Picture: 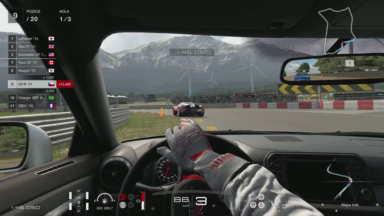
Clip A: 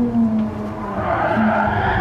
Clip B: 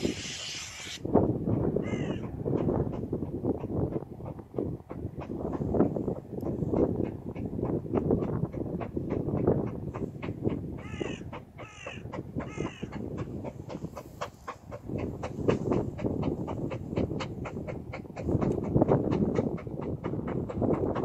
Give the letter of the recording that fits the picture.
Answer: A